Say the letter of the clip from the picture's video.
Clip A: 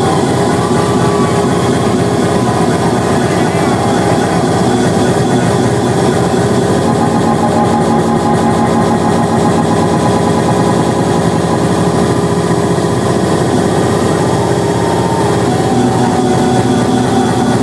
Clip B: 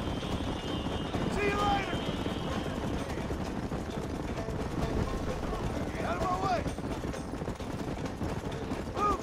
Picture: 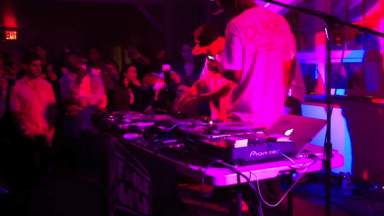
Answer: A